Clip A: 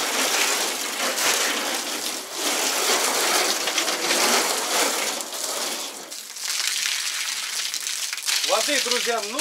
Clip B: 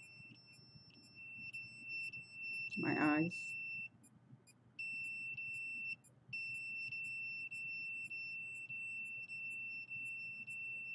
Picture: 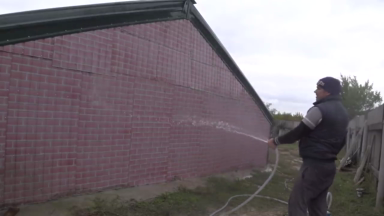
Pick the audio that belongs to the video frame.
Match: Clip A